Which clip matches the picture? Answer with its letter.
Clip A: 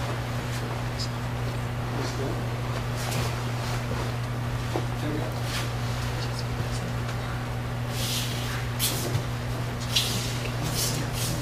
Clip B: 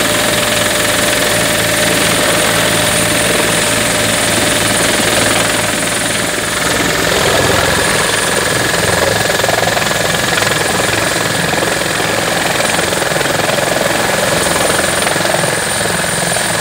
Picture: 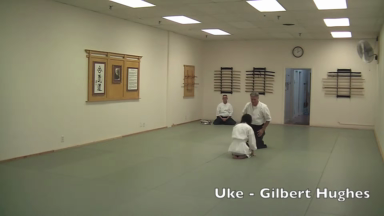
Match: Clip A